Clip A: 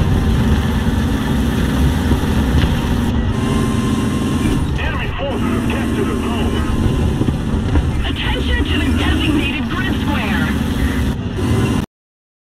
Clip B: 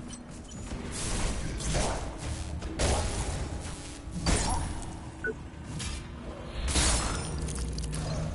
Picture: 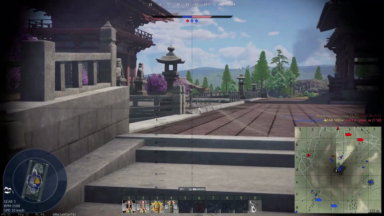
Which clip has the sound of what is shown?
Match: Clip A